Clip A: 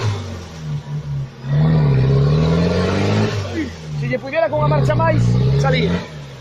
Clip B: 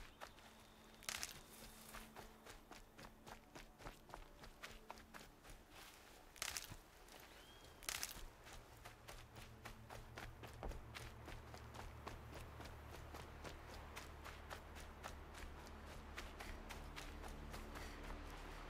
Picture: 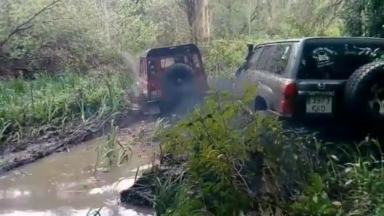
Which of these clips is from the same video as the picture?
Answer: A